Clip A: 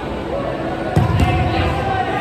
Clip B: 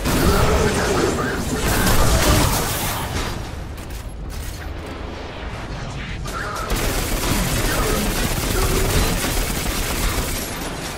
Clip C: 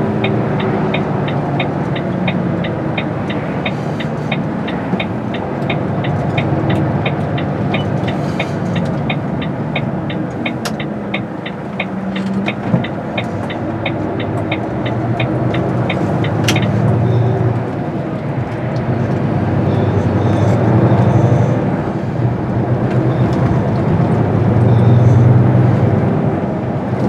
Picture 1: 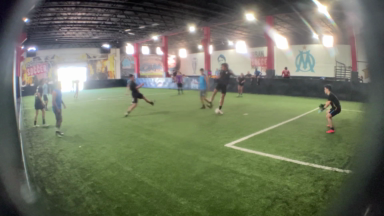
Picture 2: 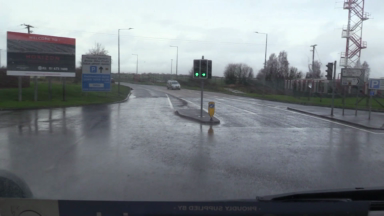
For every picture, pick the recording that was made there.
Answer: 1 A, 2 C